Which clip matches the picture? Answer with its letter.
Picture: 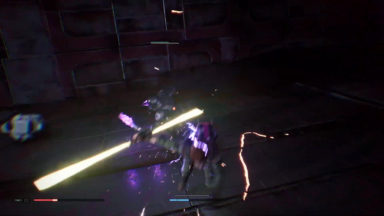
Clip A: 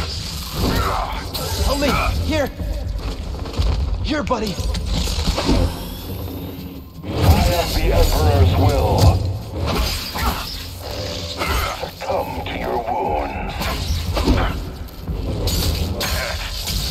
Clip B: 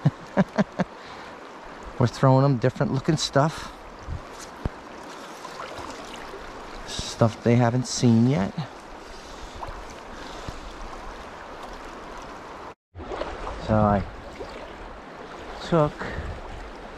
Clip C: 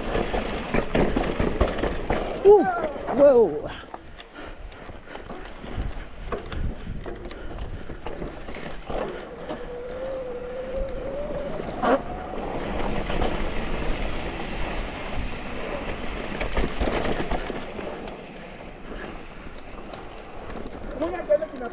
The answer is A